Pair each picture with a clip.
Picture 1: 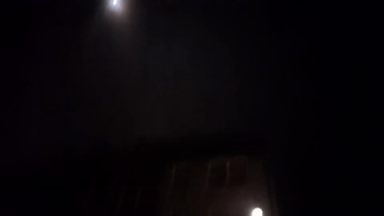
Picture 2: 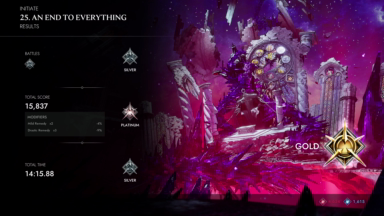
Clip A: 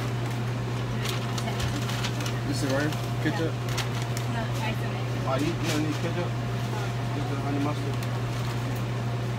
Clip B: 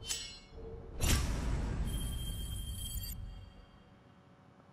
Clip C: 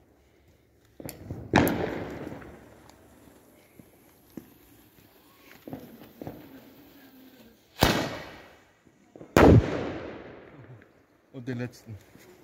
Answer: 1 C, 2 B